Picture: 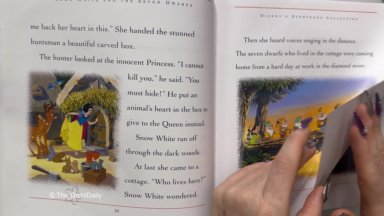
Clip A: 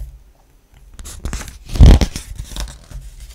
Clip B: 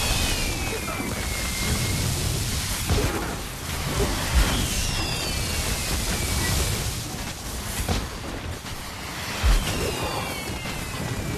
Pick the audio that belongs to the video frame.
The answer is A